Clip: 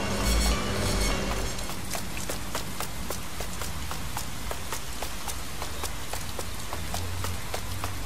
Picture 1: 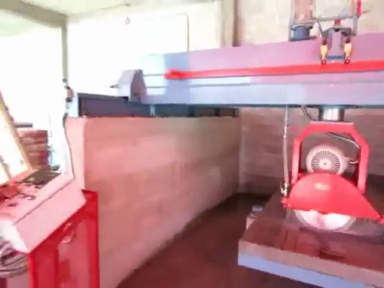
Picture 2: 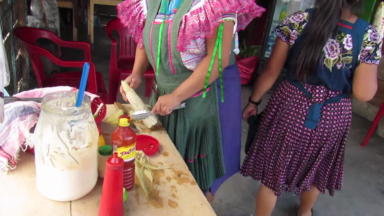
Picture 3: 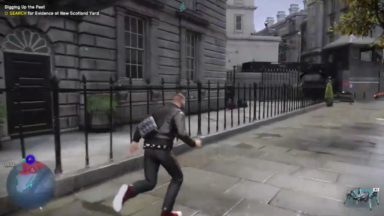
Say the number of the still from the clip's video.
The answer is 3